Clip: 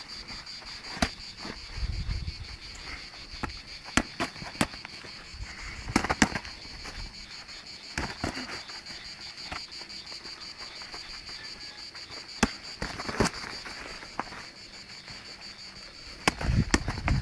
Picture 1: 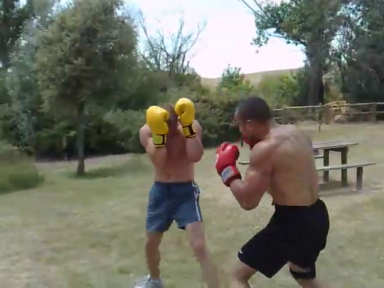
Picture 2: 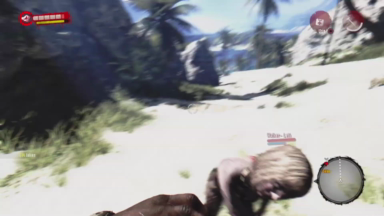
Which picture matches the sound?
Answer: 1